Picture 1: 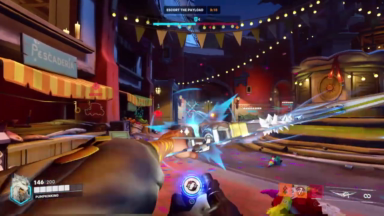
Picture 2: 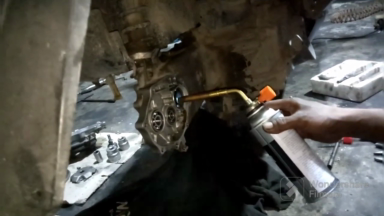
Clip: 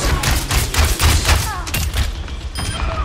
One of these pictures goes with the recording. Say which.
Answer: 1